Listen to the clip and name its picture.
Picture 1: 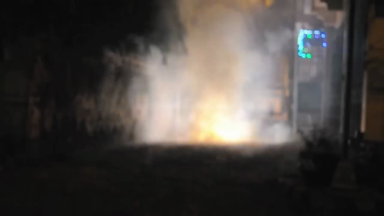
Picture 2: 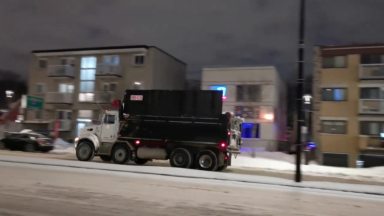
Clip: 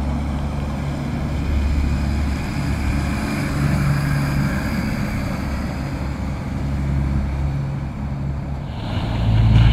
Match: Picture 2